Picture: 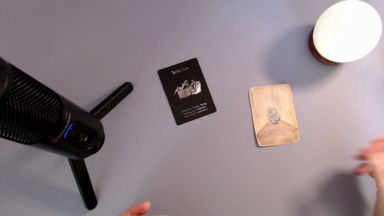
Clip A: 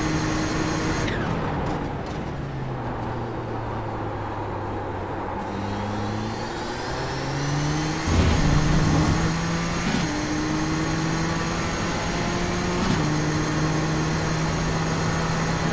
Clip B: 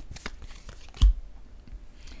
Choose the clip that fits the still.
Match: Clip B